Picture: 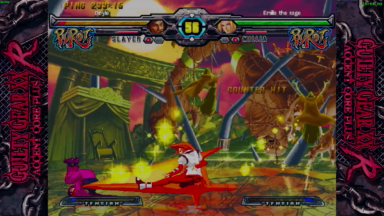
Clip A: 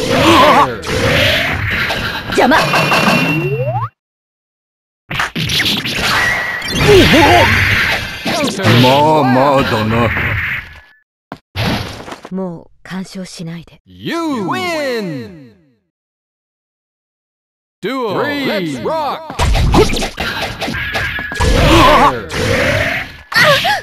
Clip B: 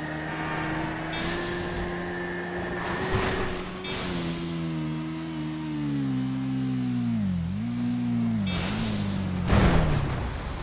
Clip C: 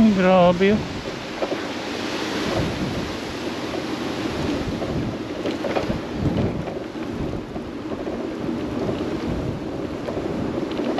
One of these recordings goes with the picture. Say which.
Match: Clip A